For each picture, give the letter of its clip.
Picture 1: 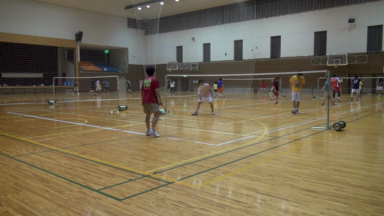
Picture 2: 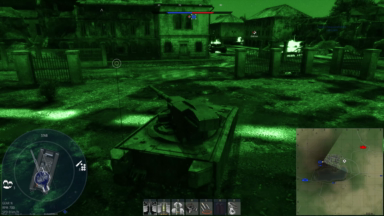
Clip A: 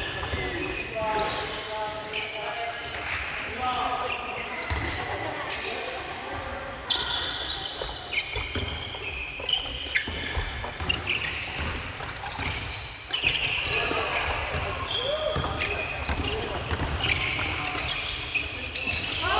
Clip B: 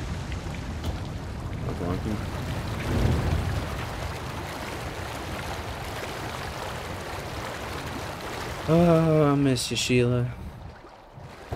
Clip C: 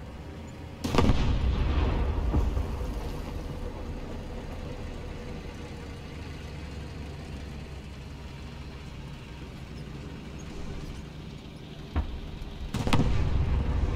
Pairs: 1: A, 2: C